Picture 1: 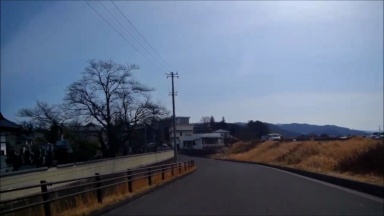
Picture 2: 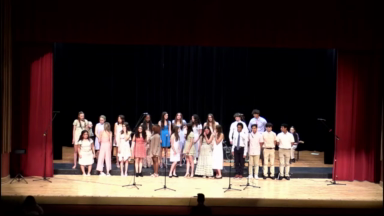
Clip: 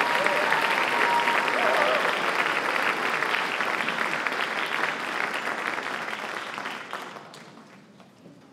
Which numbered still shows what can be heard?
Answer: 2